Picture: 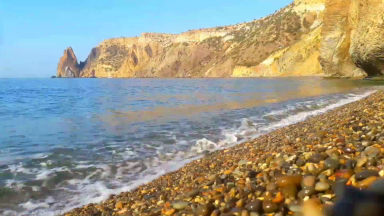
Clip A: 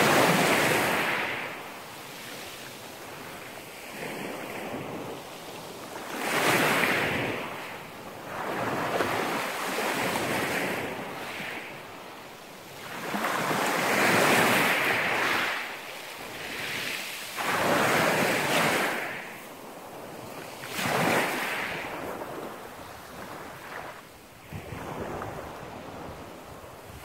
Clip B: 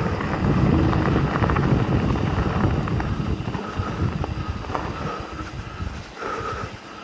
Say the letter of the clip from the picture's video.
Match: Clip A